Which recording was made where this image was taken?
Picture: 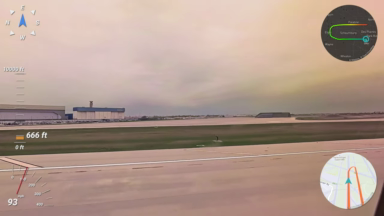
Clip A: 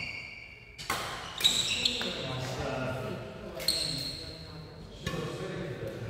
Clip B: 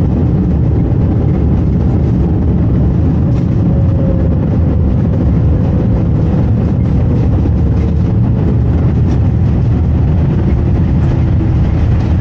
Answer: B